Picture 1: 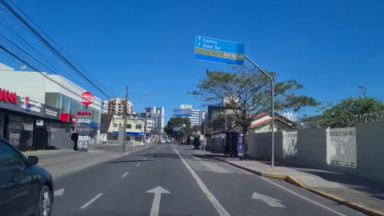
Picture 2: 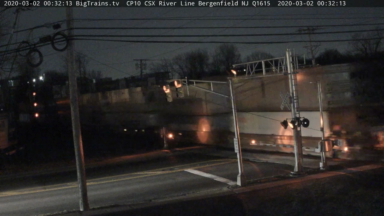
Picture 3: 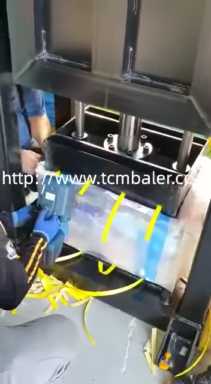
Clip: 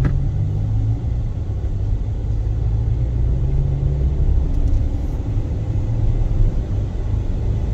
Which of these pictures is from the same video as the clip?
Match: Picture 1